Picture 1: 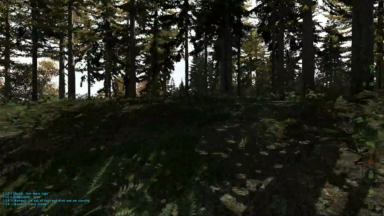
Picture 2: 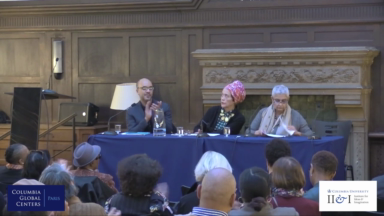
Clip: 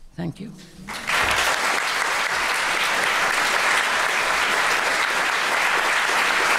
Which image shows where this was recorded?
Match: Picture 2